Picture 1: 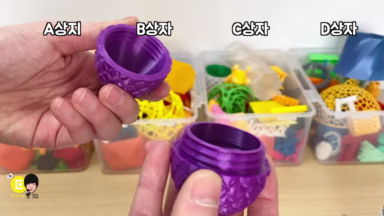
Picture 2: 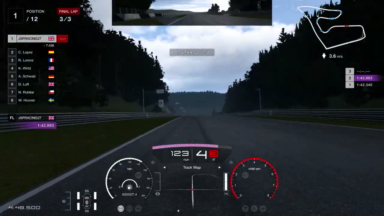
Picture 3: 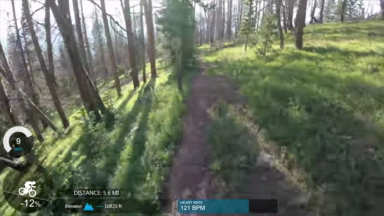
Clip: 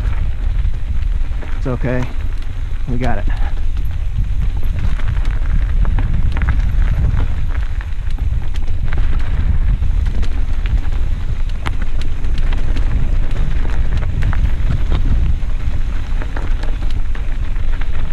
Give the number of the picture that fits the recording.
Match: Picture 3